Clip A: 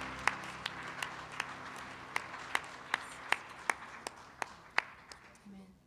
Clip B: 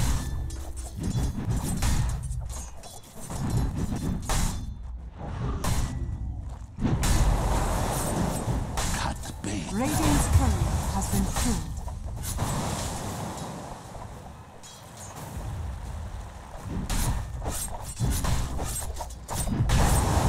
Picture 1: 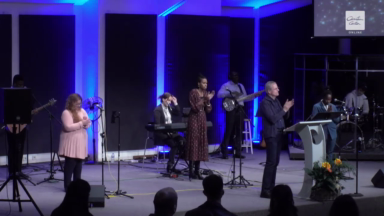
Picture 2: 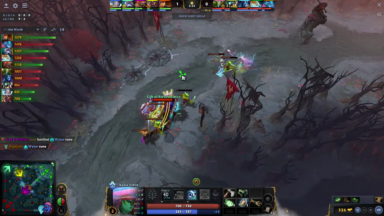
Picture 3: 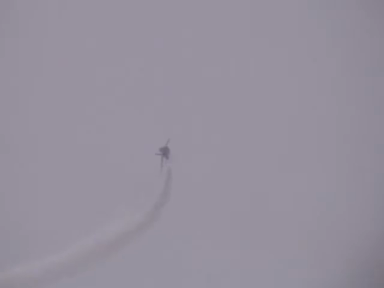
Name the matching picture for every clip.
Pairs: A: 1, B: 2